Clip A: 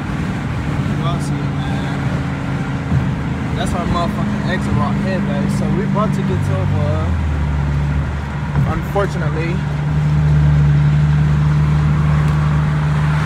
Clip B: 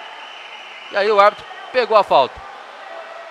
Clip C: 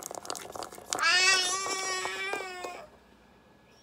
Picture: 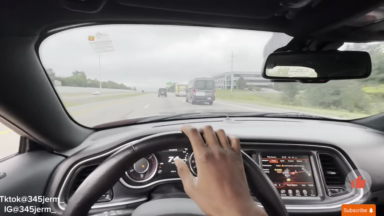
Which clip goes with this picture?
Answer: A